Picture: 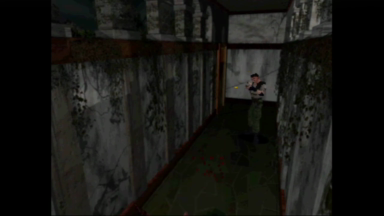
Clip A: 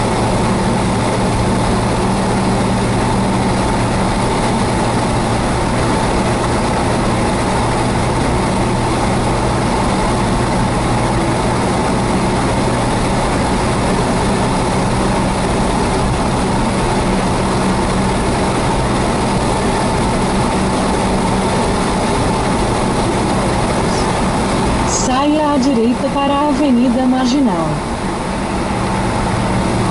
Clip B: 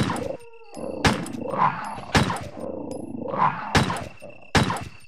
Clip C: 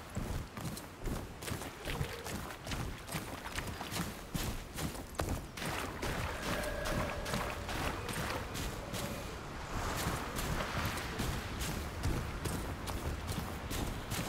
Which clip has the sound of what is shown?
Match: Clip B